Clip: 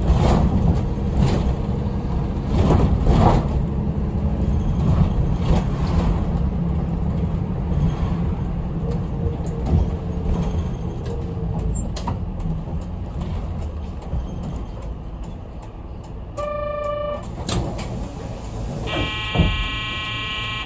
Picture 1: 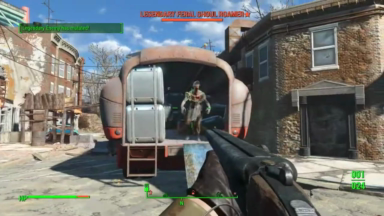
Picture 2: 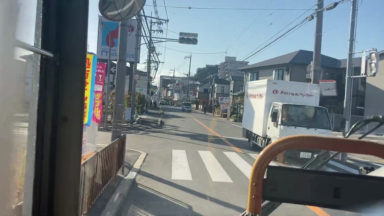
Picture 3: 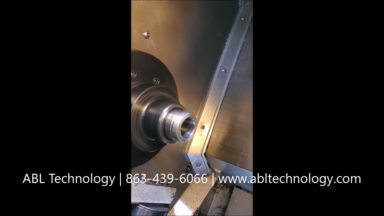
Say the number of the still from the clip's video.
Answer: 2